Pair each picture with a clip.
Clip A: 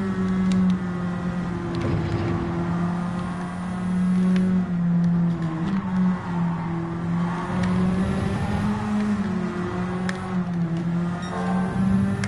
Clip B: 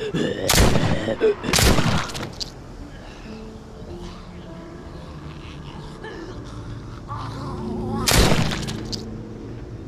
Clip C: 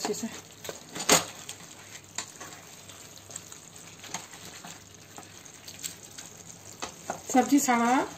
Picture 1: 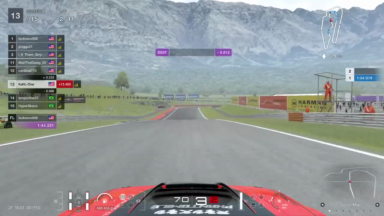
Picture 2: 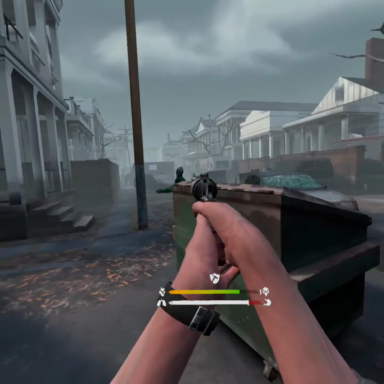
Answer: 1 A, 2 B